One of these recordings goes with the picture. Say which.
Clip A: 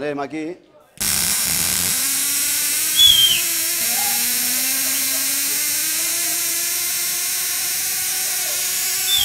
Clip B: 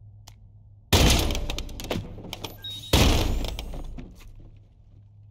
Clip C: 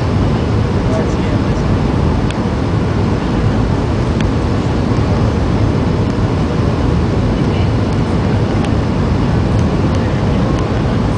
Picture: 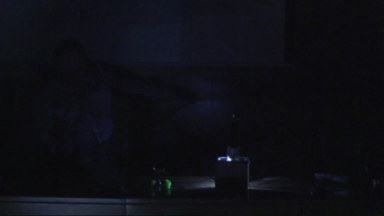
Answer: A